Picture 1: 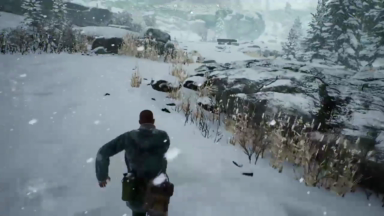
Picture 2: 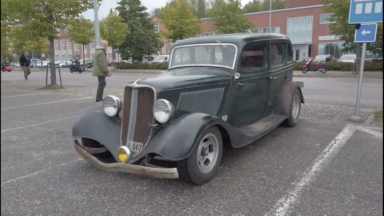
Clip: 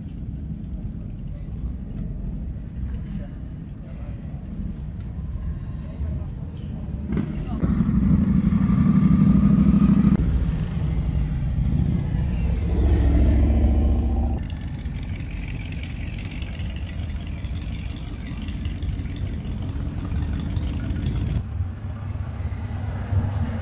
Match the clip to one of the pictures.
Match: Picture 2